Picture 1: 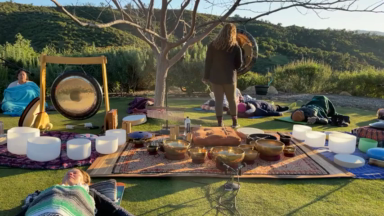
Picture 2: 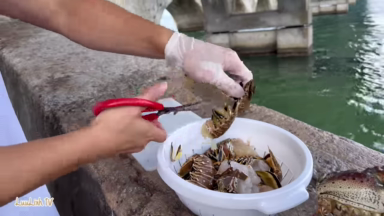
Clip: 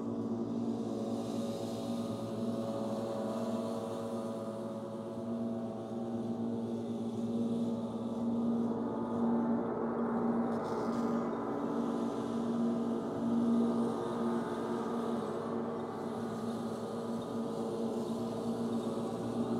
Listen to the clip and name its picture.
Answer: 1